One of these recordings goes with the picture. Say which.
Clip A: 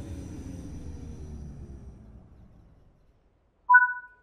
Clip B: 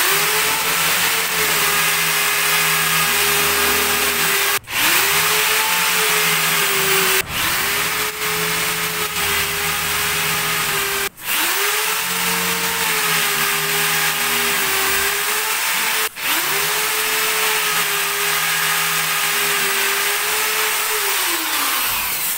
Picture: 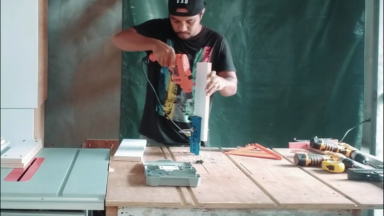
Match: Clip B